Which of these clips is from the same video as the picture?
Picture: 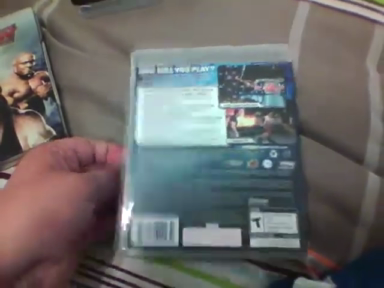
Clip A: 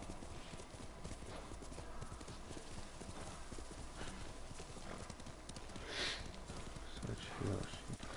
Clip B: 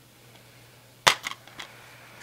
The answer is B